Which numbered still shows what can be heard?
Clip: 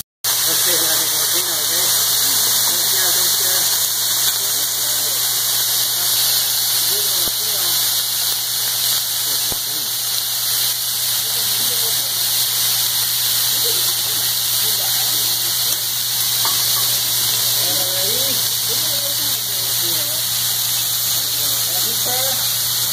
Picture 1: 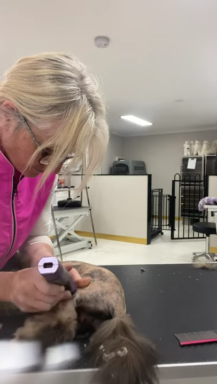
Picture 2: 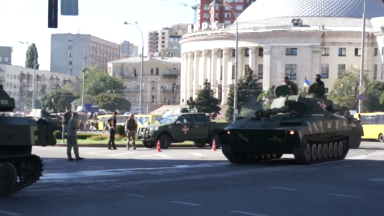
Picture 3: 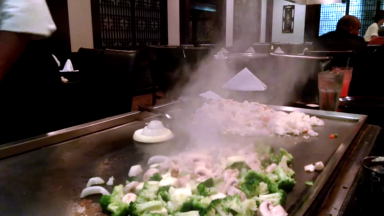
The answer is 3